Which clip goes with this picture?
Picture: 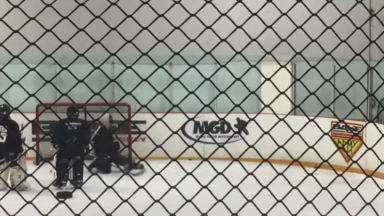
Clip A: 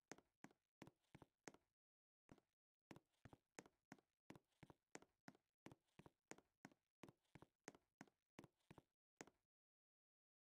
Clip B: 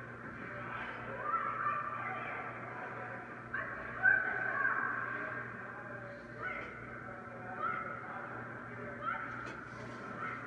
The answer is B